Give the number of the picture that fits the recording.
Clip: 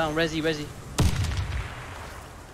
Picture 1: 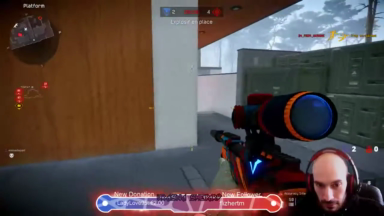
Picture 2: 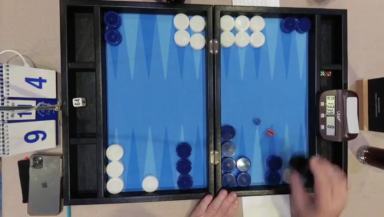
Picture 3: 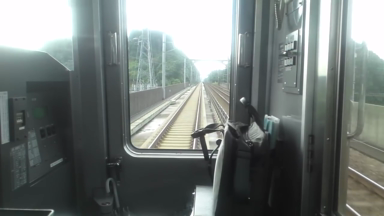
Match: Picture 1